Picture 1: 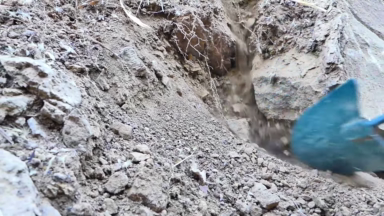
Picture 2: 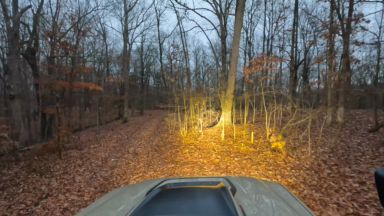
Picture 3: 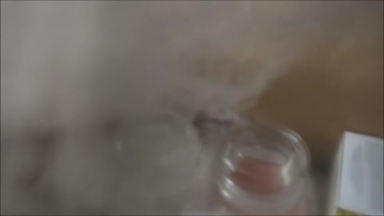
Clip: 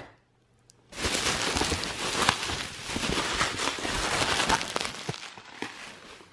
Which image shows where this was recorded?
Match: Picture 3